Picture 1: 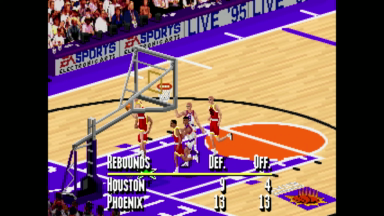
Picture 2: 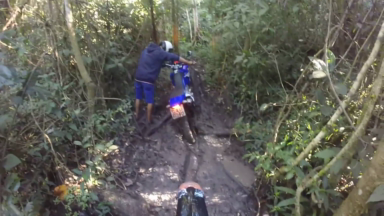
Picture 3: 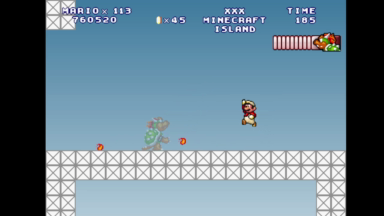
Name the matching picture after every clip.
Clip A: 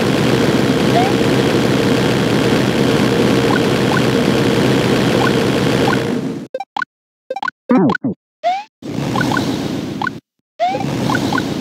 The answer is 3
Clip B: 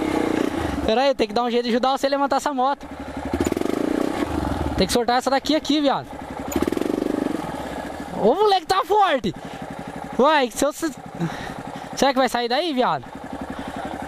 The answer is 2